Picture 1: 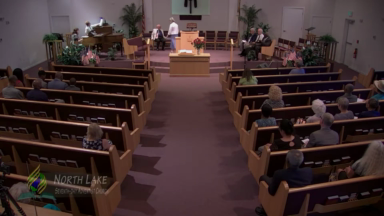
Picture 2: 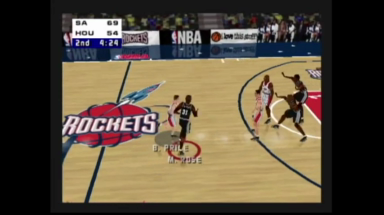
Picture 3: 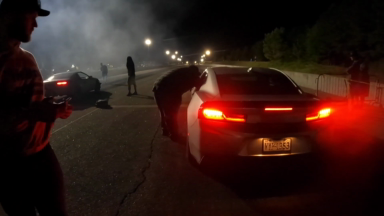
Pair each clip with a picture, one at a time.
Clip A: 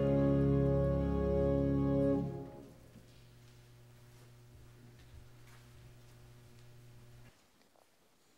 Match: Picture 1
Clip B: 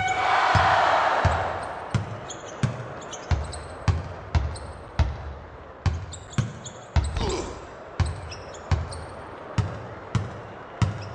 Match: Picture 2